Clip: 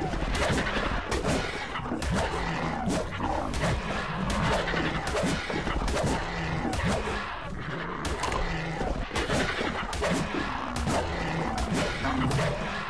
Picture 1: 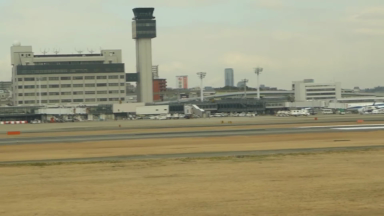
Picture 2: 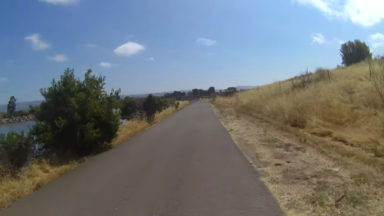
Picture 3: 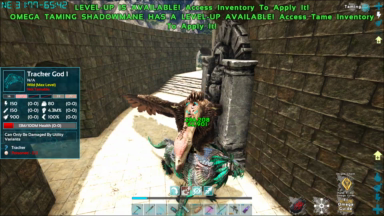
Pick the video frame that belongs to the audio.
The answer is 3